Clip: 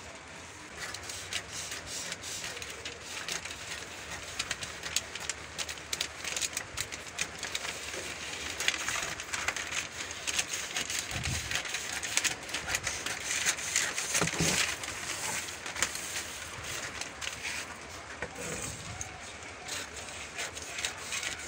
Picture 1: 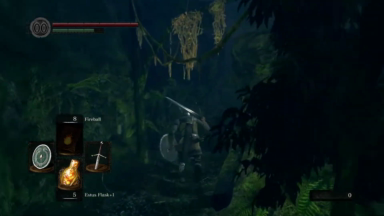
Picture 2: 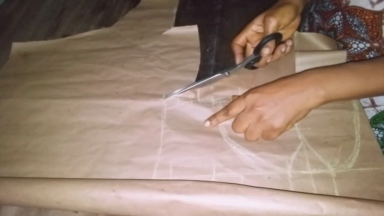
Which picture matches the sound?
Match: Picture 2